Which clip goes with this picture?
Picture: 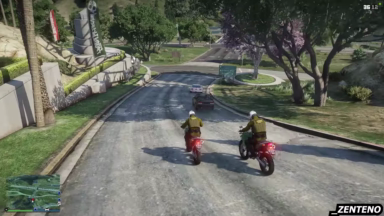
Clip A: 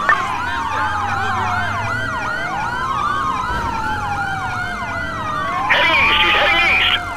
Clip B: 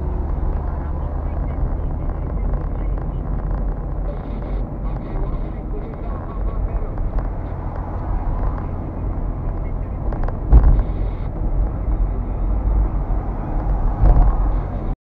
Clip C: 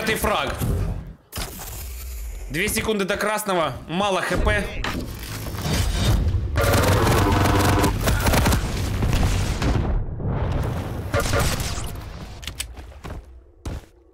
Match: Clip A